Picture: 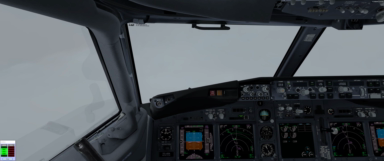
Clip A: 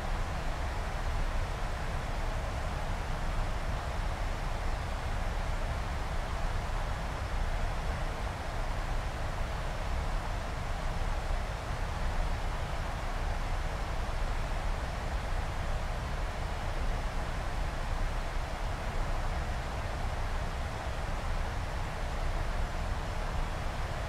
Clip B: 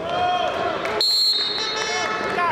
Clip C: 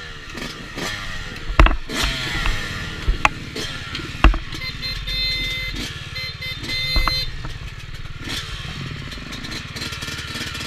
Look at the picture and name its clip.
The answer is A